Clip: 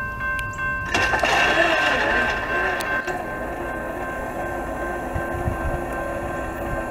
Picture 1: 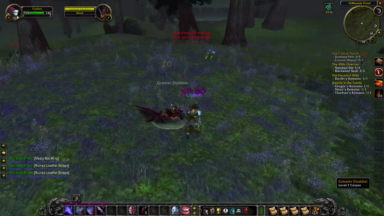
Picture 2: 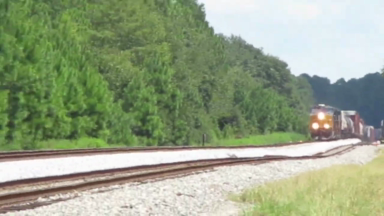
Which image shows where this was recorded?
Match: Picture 2